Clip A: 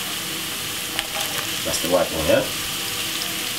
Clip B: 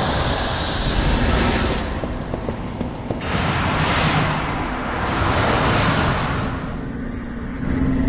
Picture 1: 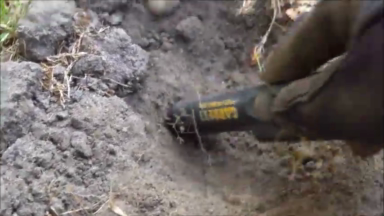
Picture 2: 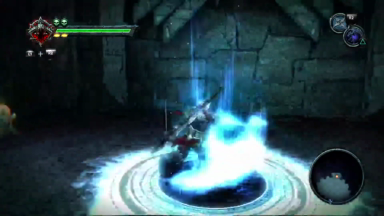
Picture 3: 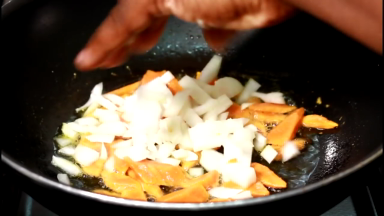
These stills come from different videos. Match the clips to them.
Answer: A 3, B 2